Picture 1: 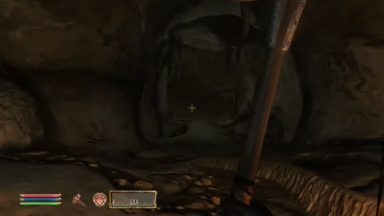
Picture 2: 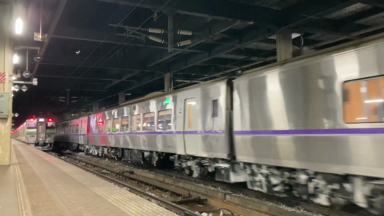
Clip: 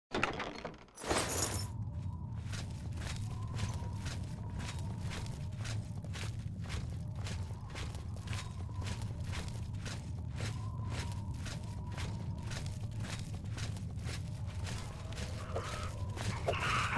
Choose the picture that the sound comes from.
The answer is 1